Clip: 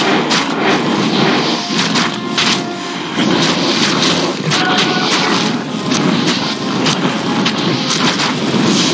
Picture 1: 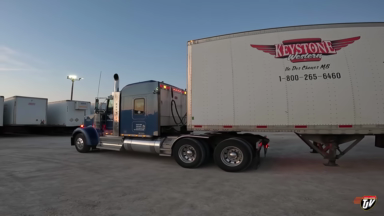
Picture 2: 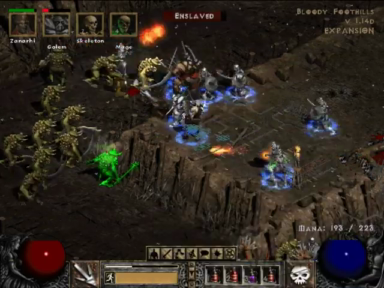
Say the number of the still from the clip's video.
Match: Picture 2